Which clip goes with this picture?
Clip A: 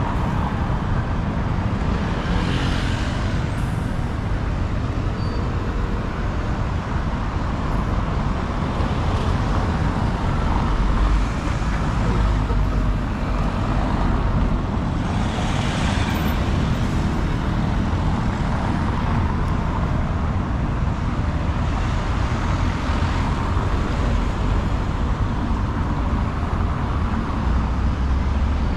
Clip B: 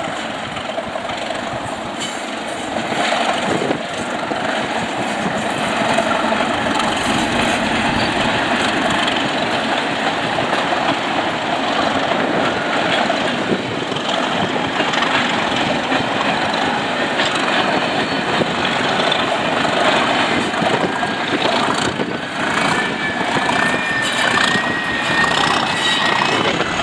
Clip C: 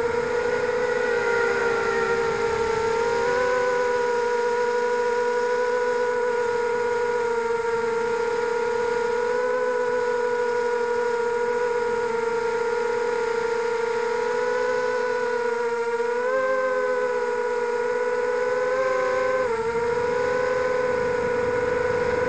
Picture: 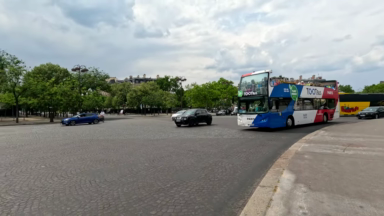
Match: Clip A